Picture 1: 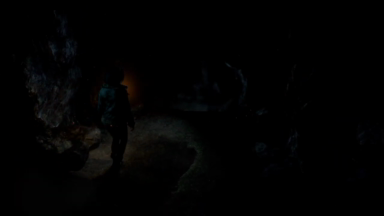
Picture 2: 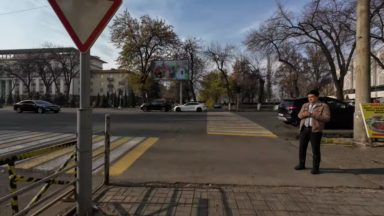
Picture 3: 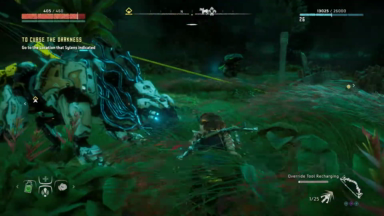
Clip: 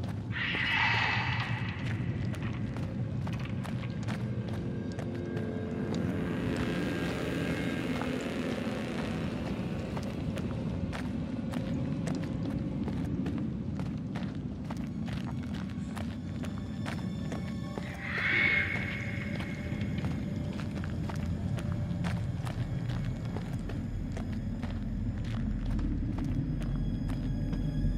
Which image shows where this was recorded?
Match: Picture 1